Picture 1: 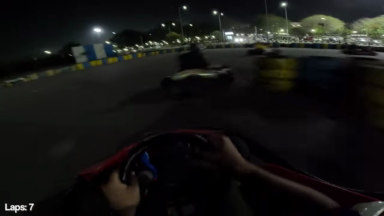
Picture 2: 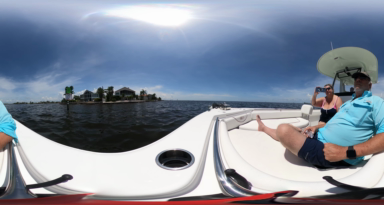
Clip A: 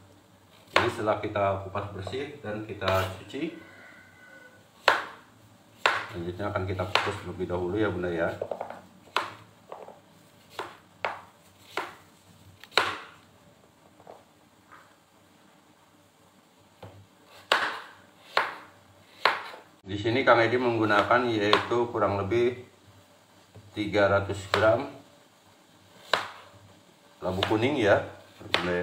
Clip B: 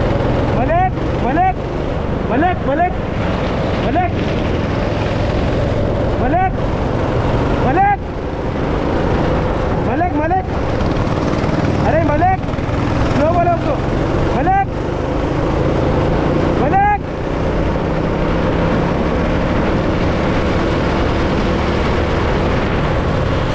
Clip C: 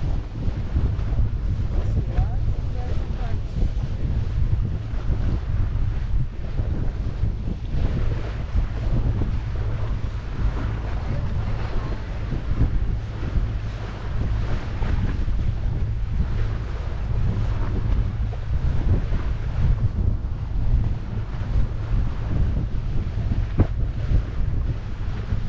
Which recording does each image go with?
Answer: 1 B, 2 C